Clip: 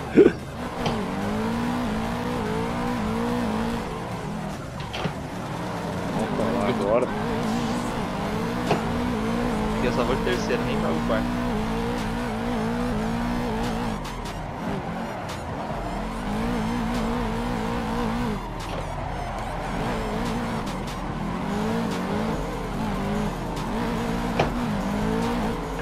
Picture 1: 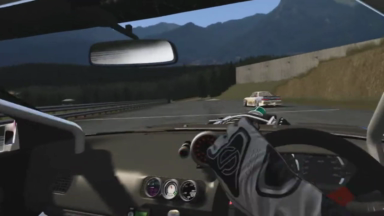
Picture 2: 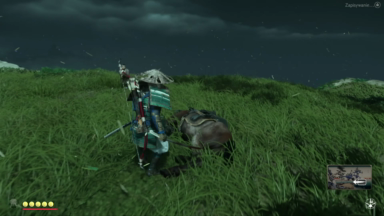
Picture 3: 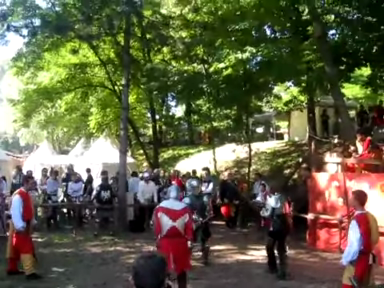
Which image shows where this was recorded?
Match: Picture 1